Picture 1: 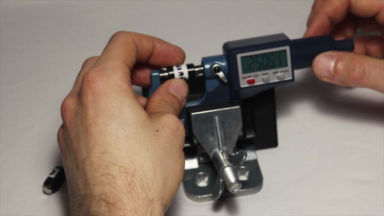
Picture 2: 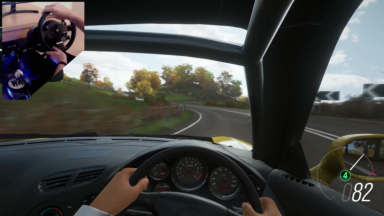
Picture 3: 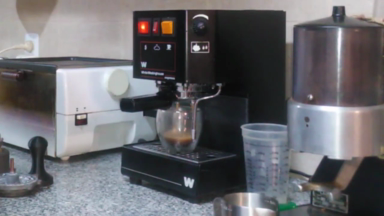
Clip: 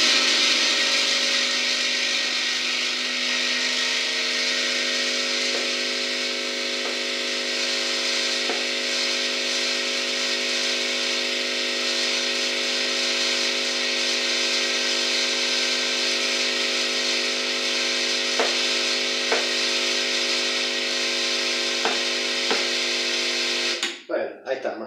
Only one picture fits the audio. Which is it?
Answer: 3